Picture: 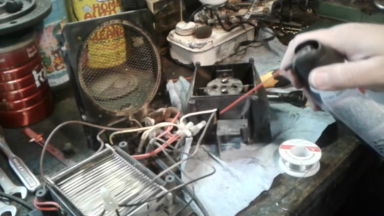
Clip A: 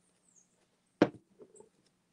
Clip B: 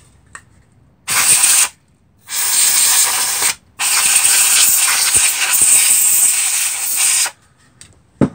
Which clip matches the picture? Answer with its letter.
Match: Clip B